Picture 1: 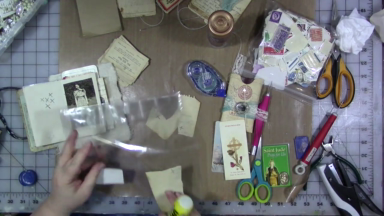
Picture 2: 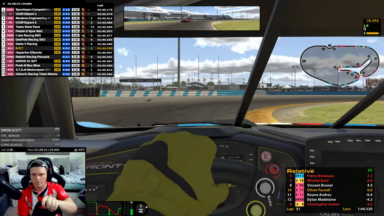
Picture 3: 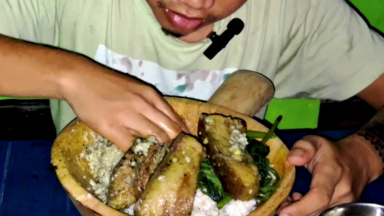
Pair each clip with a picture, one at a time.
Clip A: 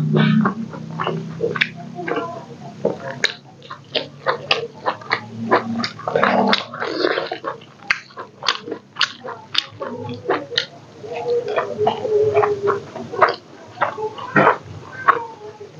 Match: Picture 3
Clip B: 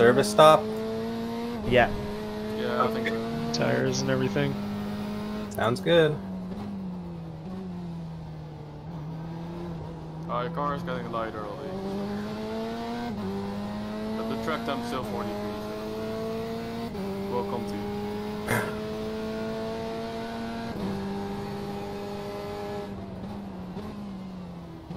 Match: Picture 2